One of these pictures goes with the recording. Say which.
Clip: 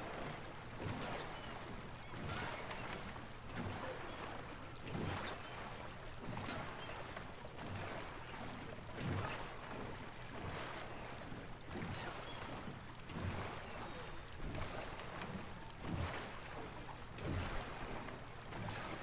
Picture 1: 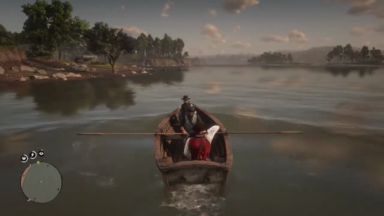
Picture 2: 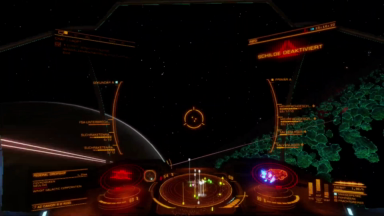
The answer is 1